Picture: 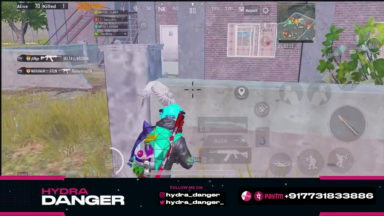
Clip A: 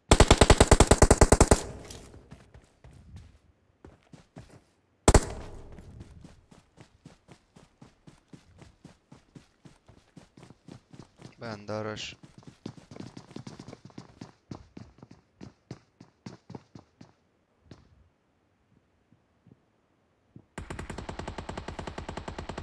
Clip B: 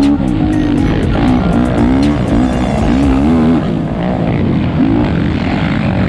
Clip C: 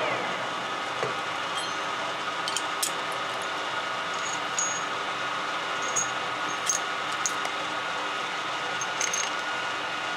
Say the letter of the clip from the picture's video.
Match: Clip A